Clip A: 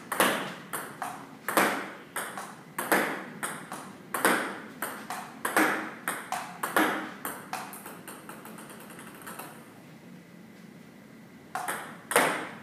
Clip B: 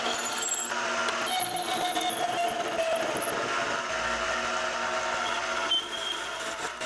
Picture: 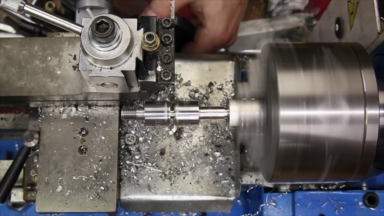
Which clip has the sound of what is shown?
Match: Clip B